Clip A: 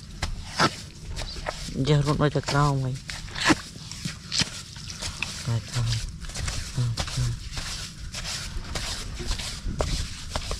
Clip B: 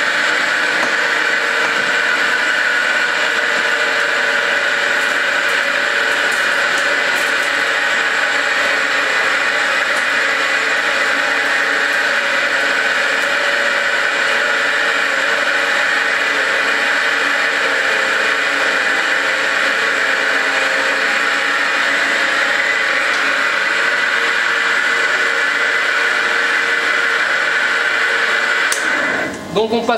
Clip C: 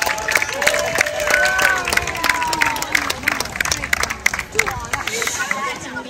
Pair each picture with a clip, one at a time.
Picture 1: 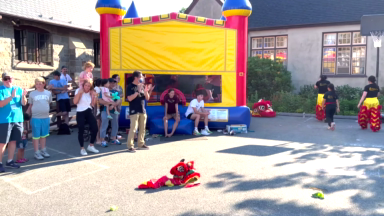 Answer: C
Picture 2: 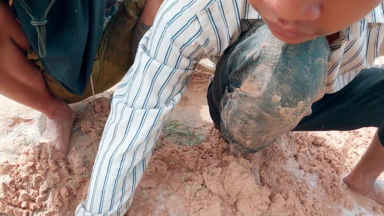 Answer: A